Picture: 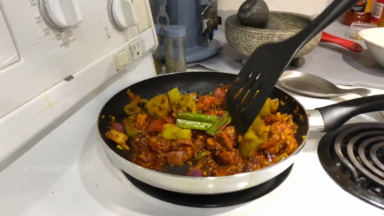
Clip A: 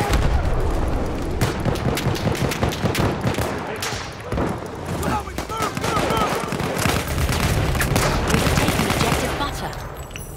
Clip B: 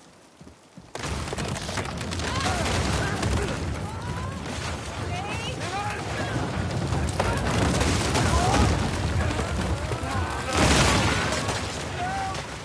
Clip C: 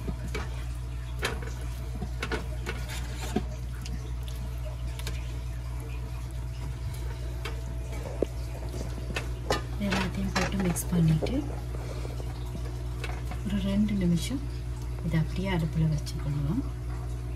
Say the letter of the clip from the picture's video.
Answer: C